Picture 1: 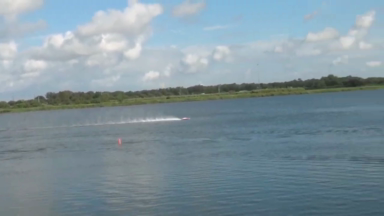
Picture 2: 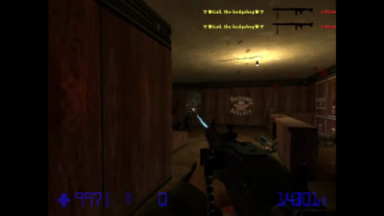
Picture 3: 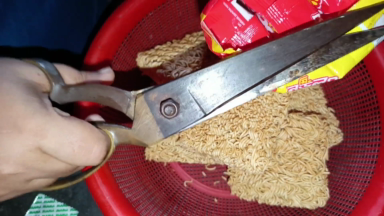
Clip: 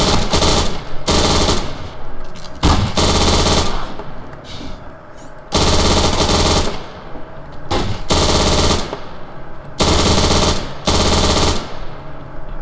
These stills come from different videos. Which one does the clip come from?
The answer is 2